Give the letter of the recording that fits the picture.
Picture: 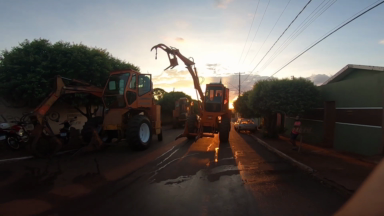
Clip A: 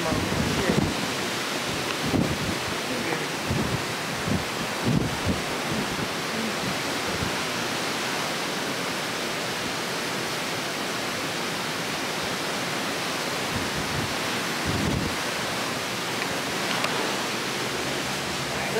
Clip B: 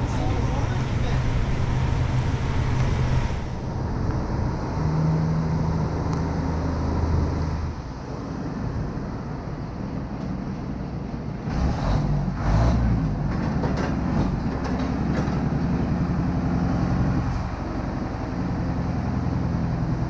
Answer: B